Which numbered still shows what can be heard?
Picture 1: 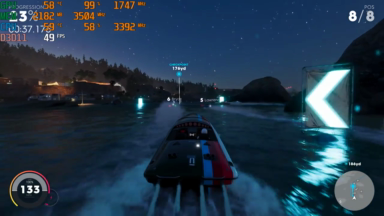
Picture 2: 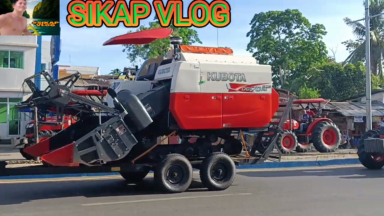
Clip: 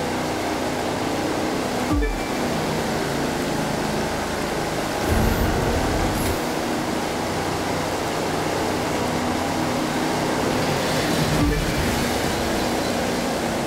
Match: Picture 1